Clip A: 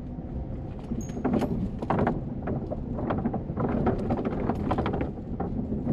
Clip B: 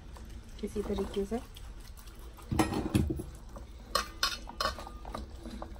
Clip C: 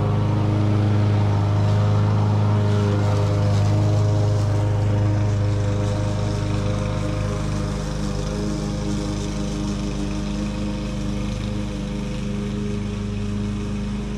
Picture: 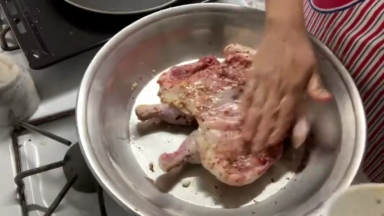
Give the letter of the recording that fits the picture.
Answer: B